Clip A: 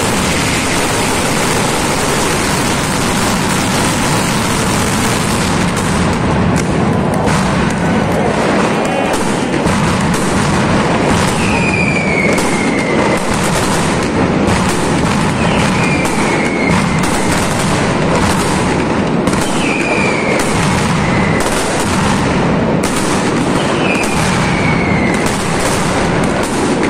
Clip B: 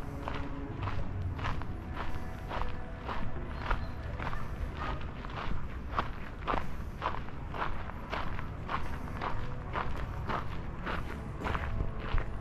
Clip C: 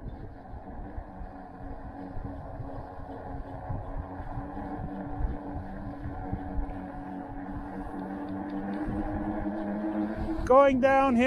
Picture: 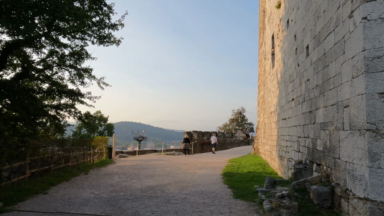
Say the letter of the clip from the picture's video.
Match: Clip B